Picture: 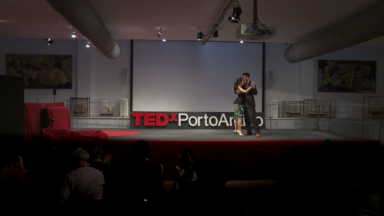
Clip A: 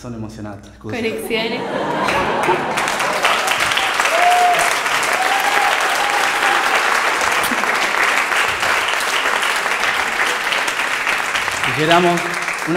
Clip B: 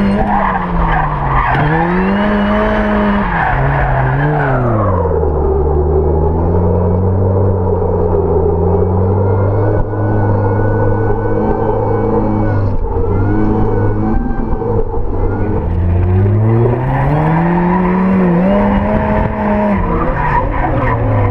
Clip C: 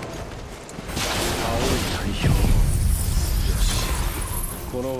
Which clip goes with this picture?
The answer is A